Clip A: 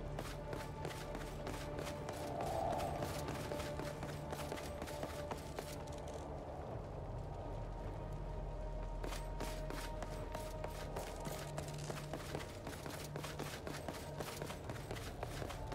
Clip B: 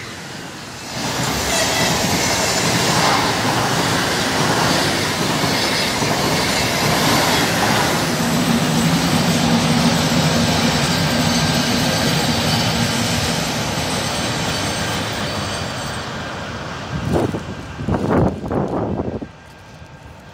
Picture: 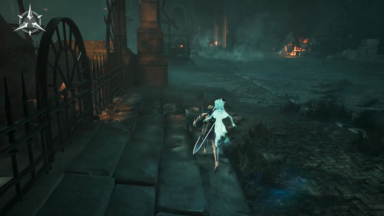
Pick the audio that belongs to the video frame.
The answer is A